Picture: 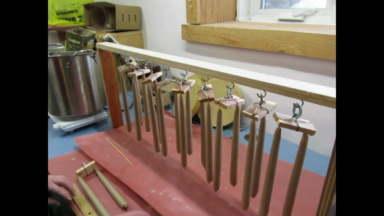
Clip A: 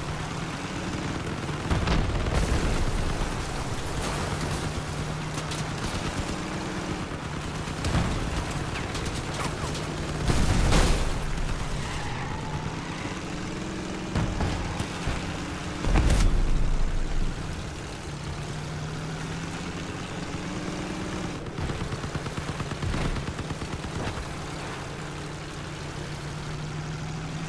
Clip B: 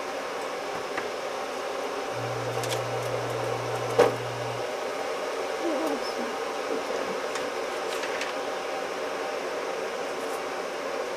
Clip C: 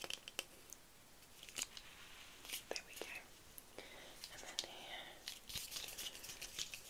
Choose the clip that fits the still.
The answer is B